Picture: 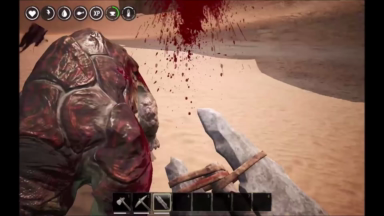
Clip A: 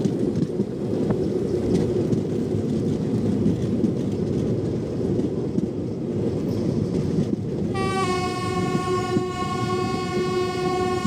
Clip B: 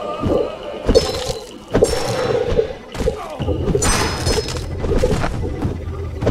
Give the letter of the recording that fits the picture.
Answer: B